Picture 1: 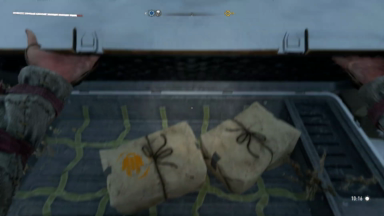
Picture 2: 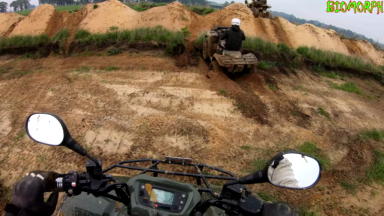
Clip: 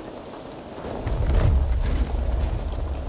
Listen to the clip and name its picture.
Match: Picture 1